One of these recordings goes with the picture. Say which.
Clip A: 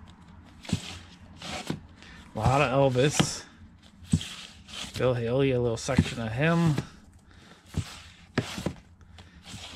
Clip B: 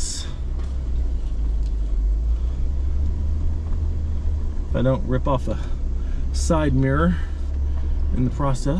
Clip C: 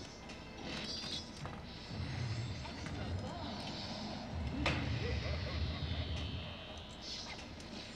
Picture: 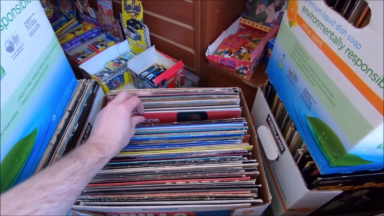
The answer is A